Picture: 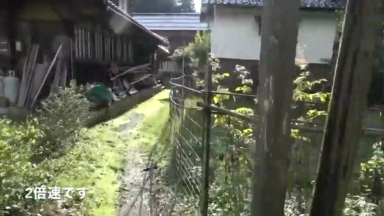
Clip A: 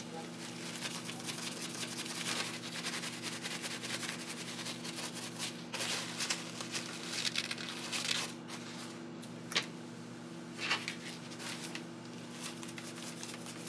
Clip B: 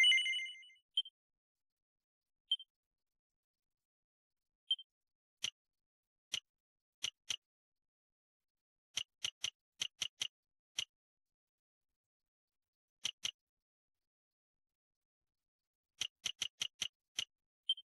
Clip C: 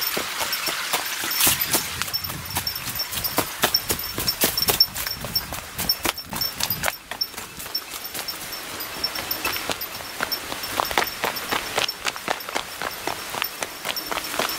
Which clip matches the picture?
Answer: C